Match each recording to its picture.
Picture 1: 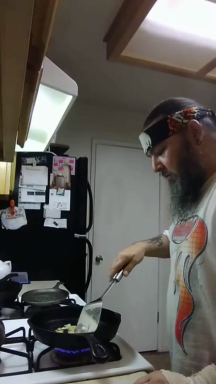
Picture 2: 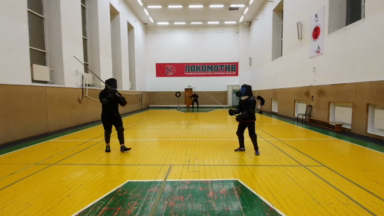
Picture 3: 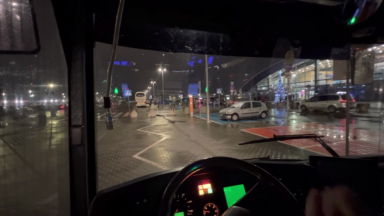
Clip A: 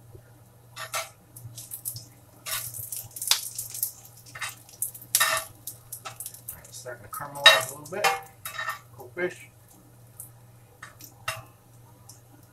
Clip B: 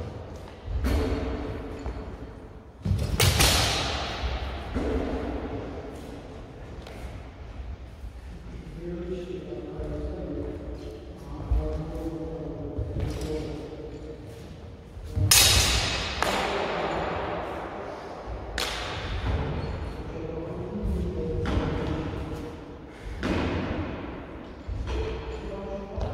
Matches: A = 1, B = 2